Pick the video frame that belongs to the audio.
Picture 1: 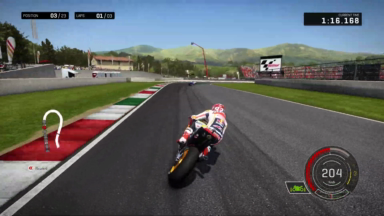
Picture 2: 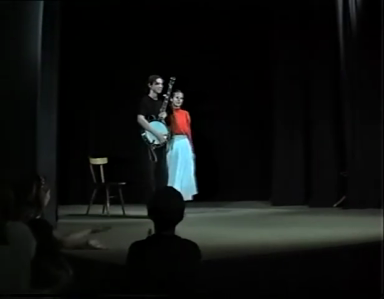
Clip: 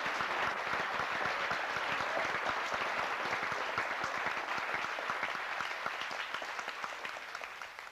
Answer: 2